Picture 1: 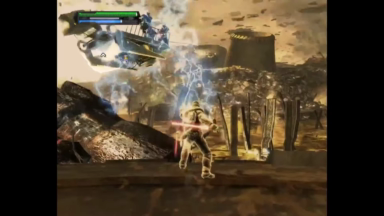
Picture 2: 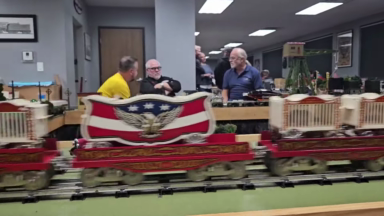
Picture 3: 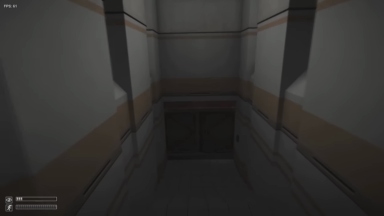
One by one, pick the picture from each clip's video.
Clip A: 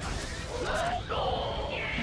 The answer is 1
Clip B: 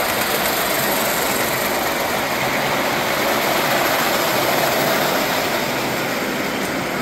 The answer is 2